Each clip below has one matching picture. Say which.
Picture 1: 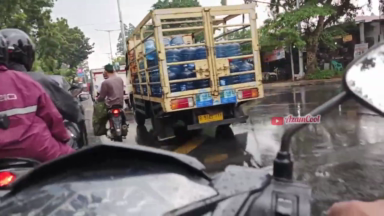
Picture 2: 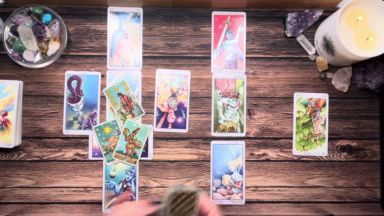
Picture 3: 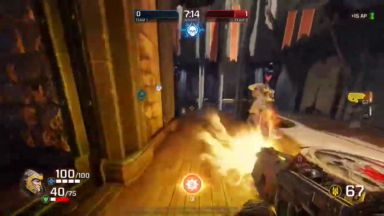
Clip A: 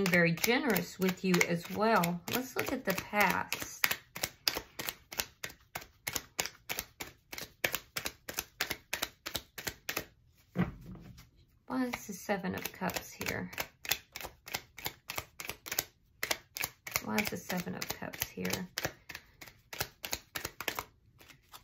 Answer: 2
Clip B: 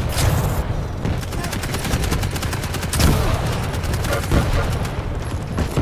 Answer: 3